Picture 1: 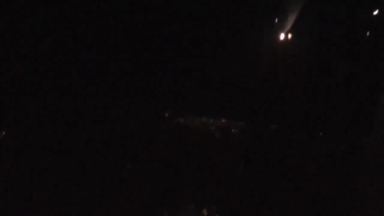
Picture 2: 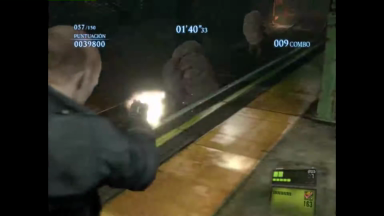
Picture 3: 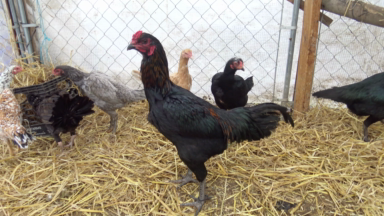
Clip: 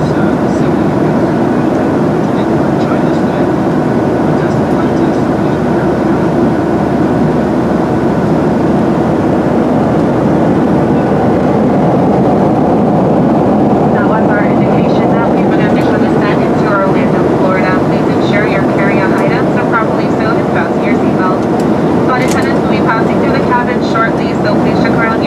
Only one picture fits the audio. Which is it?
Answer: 1